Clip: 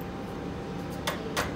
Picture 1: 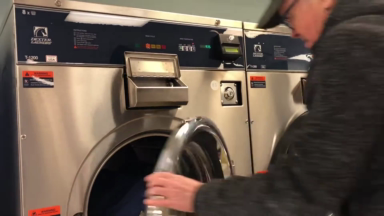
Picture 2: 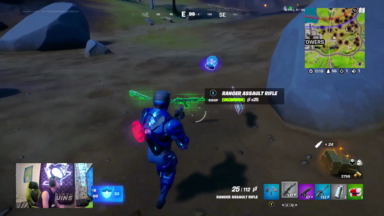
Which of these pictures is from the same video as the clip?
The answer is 1